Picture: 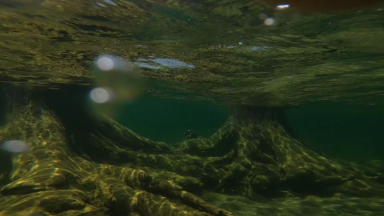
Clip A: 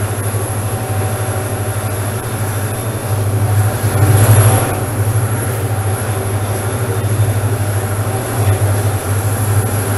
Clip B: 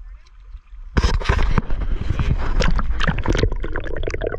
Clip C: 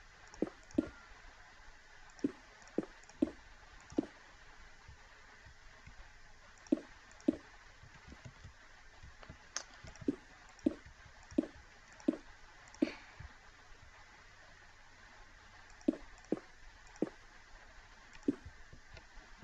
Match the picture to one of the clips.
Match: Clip B